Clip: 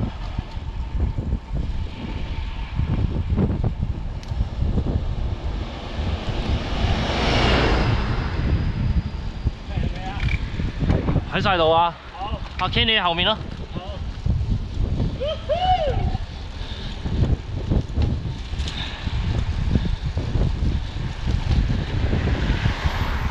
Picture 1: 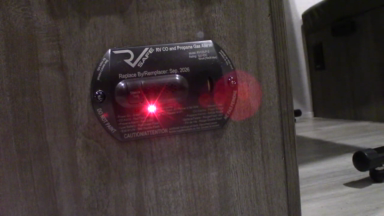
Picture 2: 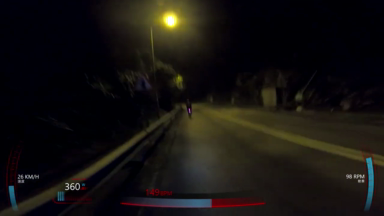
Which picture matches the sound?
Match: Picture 2